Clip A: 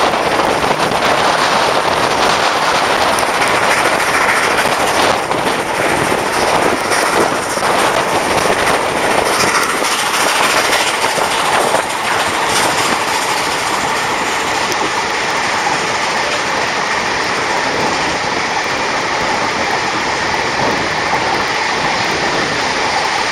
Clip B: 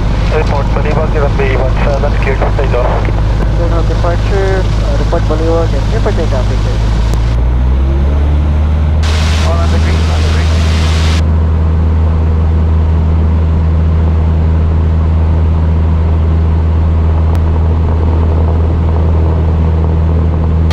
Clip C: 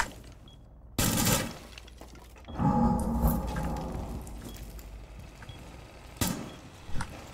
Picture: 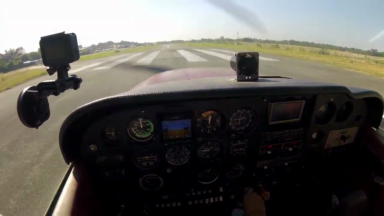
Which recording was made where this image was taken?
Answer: B